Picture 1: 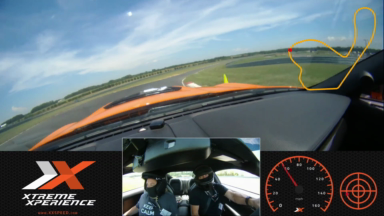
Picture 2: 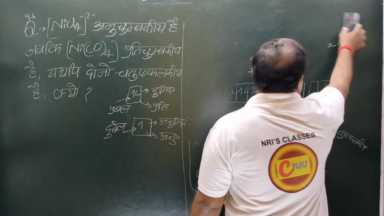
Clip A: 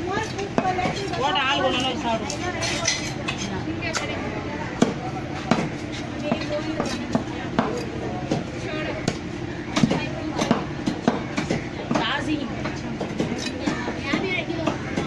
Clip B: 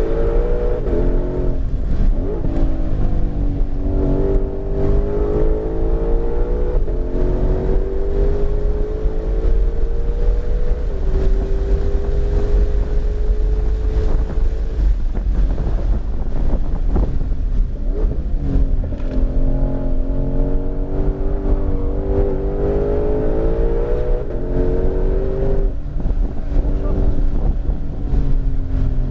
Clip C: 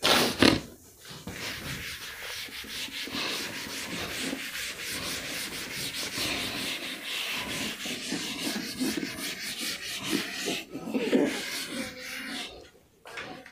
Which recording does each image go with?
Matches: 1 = B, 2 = C